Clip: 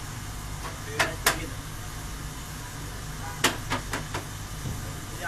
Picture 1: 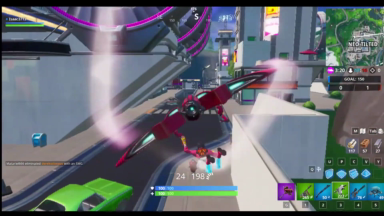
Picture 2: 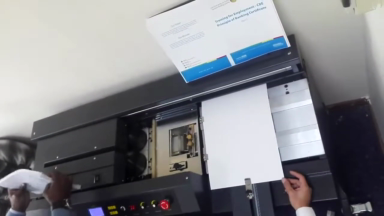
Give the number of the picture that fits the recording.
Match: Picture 2